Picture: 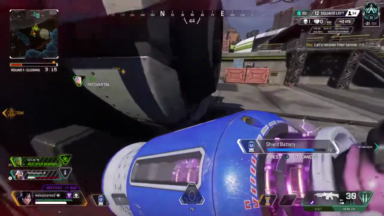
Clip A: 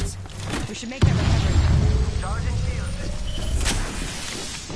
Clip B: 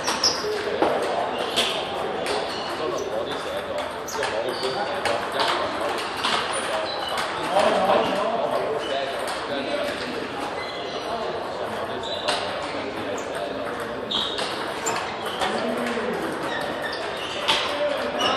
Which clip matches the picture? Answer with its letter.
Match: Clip A